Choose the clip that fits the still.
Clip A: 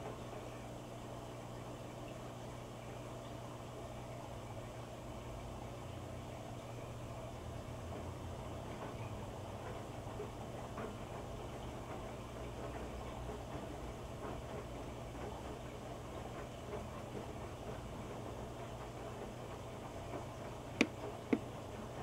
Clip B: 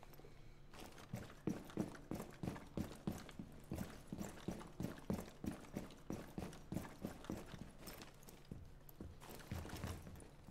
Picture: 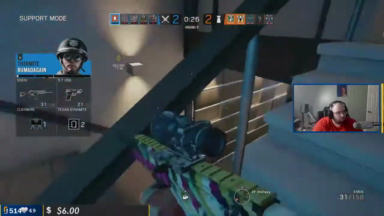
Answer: B